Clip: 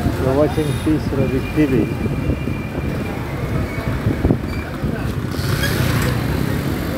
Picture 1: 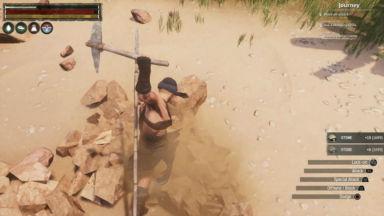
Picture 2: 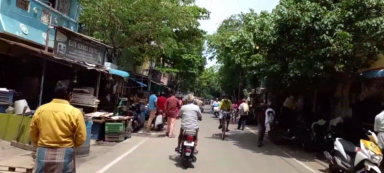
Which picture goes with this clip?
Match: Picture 2